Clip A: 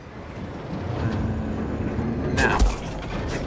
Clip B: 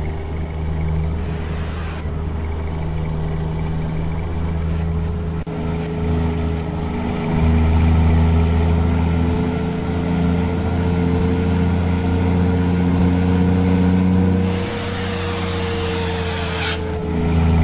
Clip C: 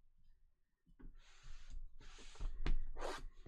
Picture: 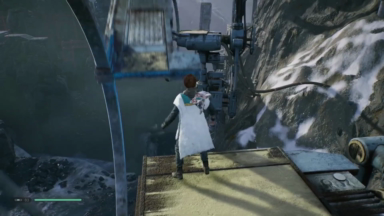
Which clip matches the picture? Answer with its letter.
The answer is A